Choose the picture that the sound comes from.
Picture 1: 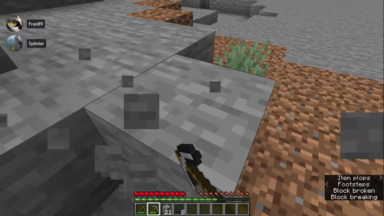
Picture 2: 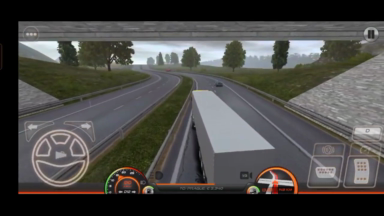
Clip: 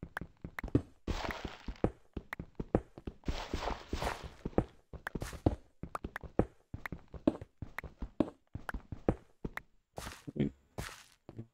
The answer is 1